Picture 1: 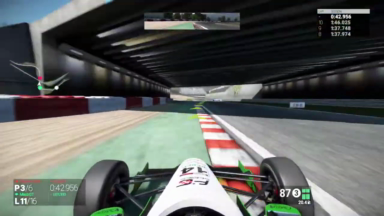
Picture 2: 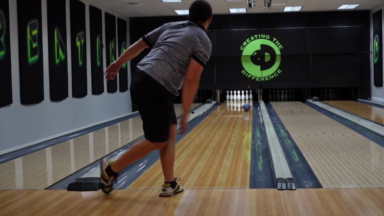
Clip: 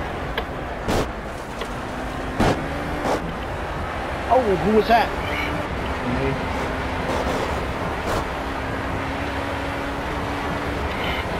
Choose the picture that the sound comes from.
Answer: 1